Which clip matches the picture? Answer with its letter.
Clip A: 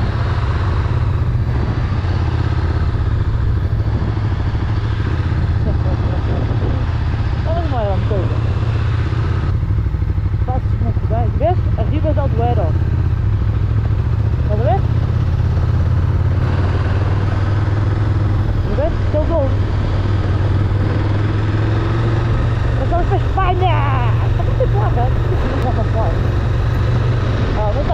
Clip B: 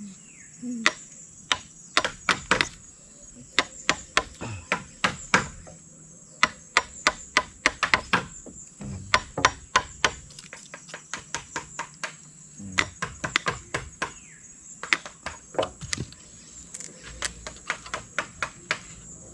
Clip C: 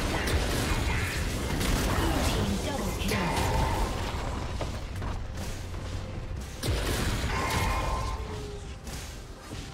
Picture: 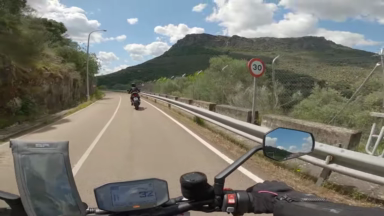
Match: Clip A